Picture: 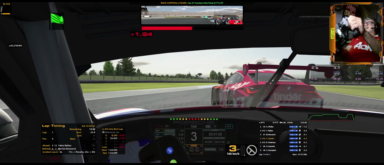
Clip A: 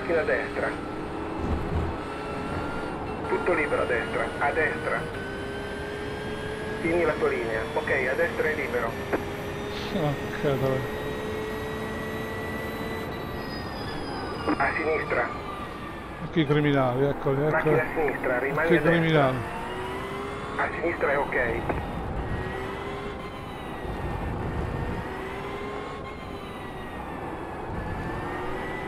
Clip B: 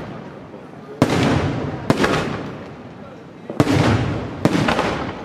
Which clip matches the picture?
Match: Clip A